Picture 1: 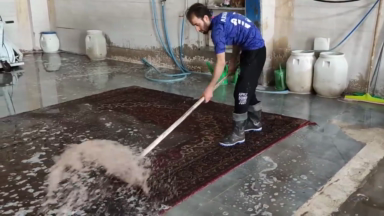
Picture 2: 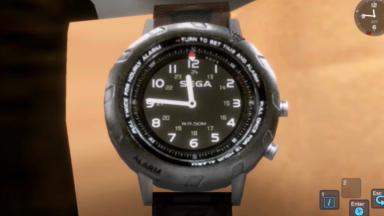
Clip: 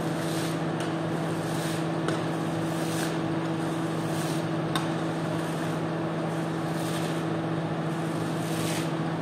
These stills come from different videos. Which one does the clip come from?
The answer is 1